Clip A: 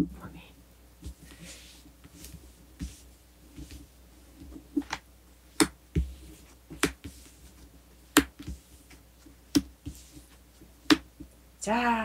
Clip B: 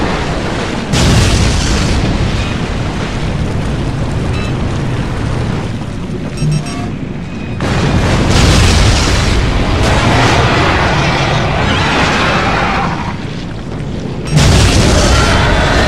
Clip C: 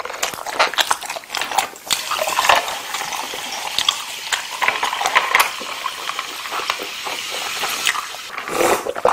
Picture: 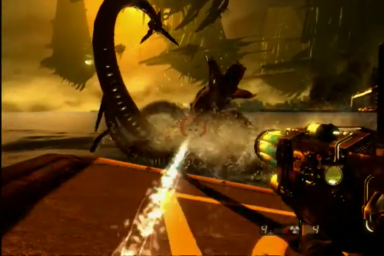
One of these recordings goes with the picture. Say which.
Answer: B